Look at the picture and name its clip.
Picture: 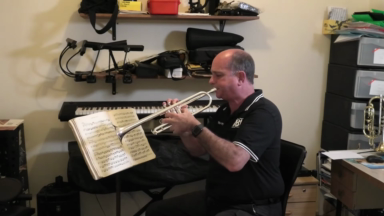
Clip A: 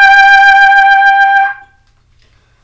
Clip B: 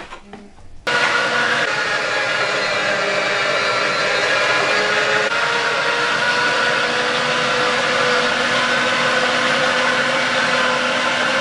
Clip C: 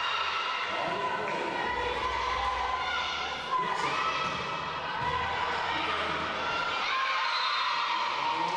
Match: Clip A